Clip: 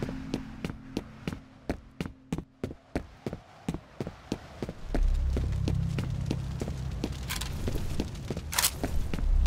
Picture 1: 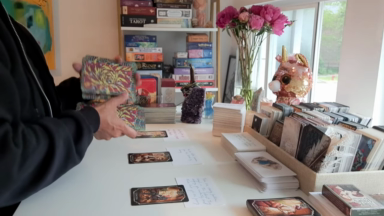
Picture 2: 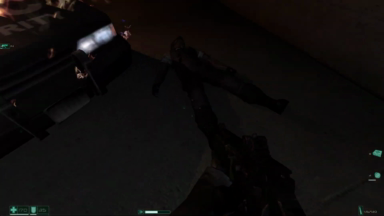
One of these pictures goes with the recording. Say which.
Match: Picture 2